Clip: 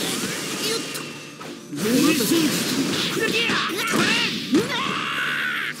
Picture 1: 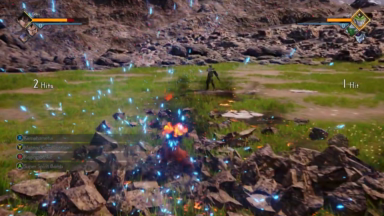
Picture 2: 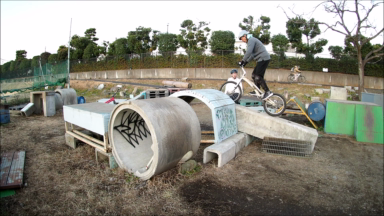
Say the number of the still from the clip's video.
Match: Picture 1